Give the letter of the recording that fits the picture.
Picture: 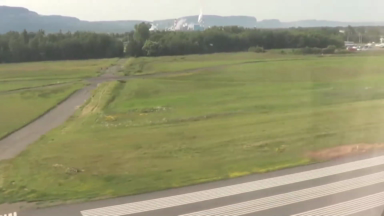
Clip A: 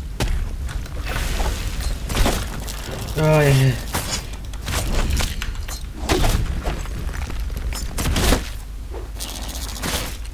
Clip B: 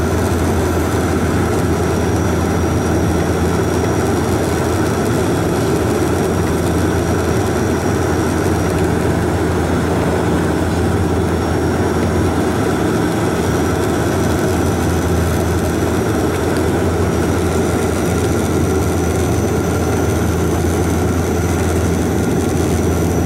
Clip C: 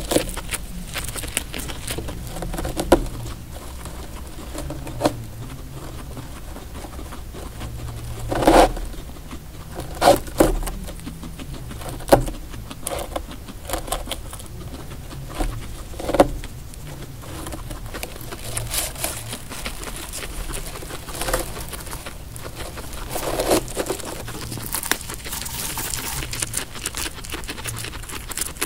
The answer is B